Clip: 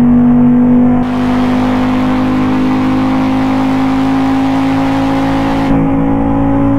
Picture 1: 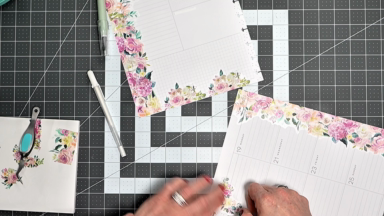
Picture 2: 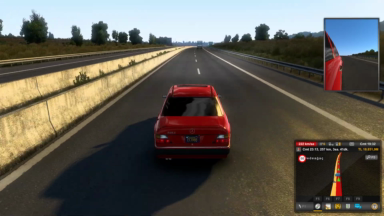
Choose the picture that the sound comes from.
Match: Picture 2